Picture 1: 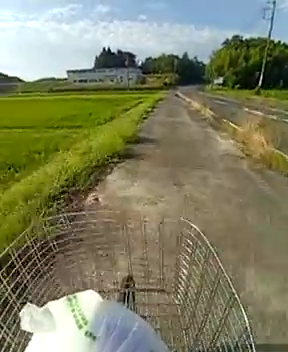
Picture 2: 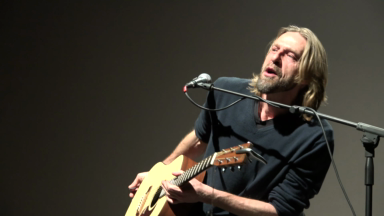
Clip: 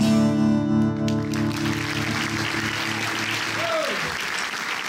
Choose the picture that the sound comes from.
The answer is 2